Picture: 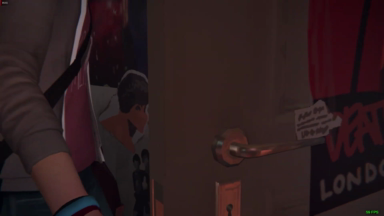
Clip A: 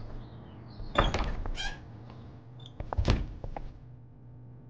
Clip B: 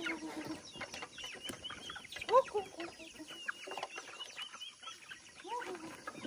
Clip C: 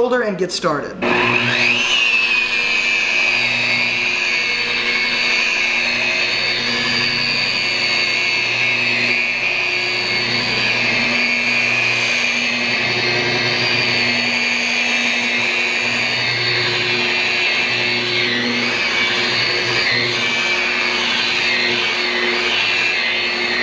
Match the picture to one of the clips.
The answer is A